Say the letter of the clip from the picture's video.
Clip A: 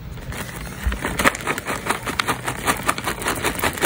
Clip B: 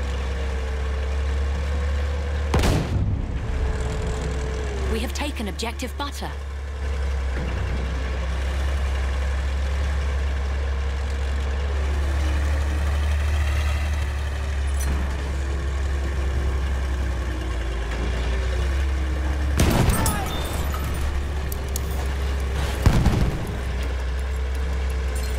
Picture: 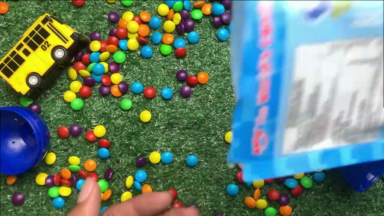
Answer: A